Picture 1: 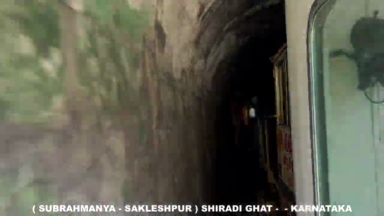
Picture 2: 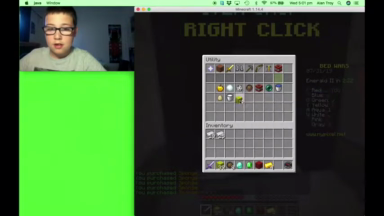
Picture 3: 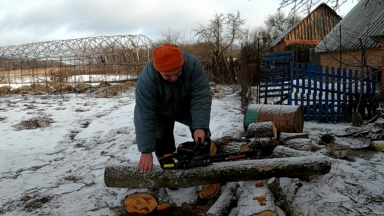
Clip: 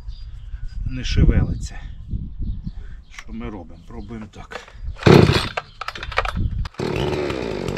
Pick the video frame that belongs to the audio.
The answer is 3